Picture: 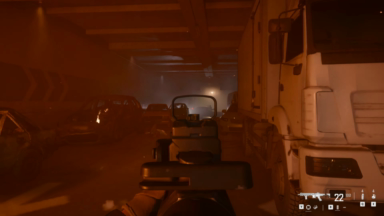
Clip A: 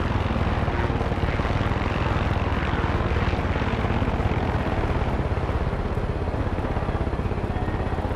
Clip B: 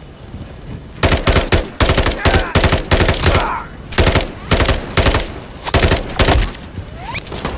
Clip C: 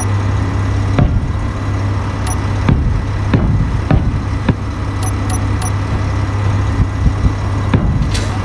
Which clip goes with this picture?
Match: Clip B